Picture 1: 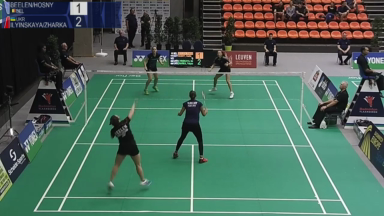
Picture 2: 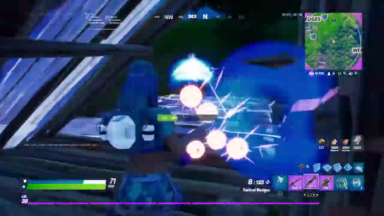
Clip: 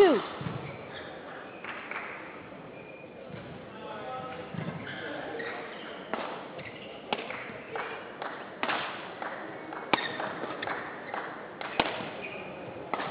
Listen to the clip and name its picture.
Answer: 1